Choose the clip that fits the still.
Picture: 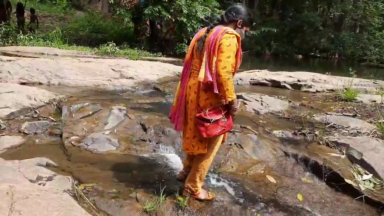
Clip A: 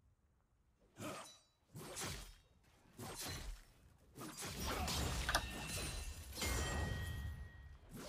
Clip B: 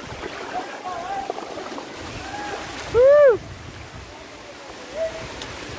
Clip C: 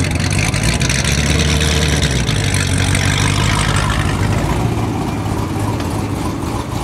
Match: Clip B